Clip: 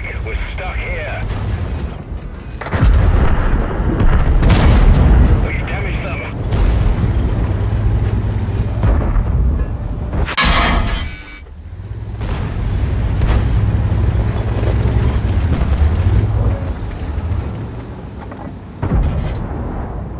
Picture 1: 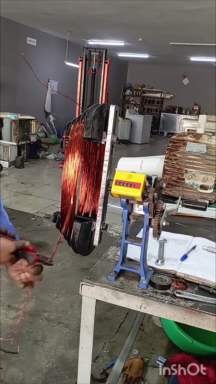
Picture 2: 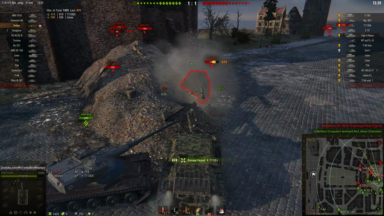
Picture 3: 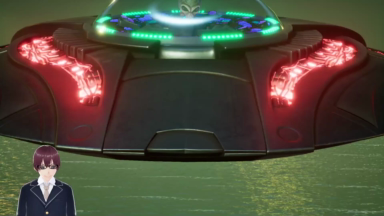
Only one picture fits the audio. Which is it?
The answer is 2